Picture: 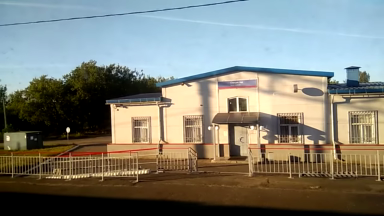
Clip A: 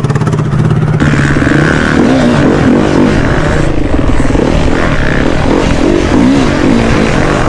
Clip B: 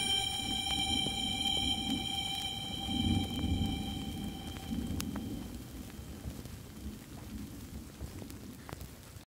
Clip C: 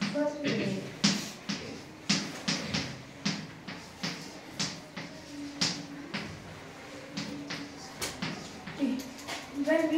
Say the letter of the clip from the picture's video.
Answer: B